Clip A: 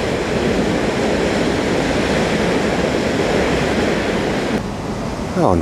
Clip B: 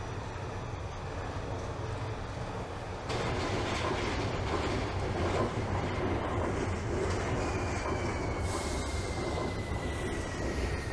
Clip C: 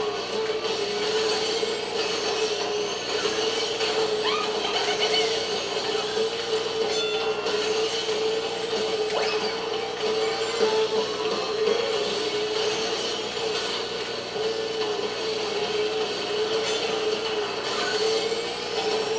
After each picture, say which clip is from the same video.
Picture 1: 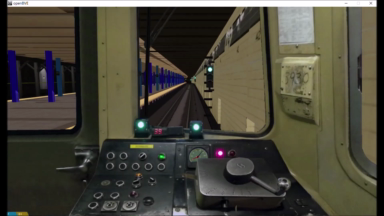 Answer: B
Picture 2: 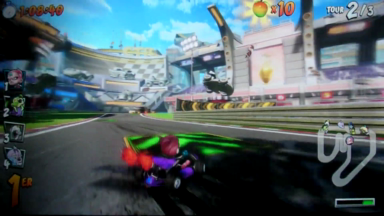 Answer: C